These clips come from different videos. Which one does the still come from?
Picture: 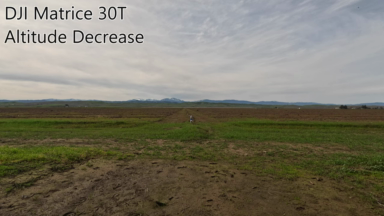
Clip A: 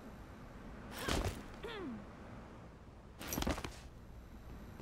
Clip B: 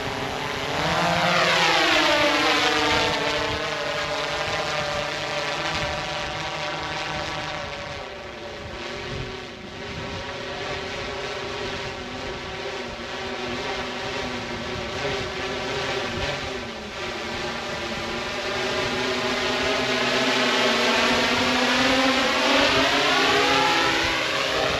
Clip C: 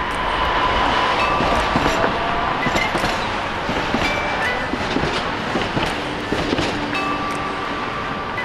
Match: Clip B